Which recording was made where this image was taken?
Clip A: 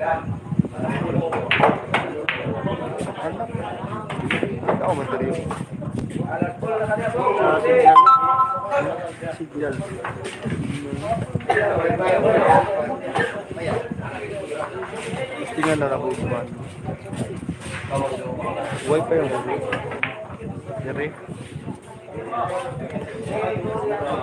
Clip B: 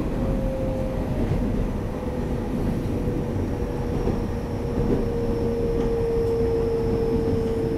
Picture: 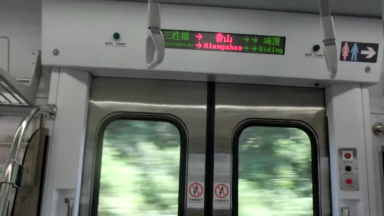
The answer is B